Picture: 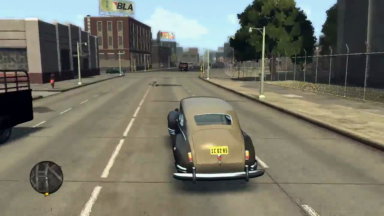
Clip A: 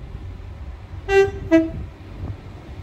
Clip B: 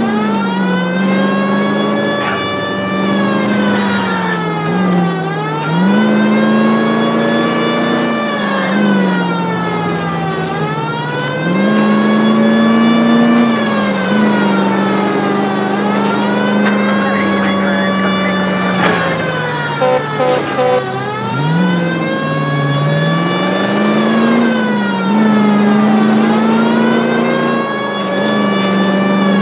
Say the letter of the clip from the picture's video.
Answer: B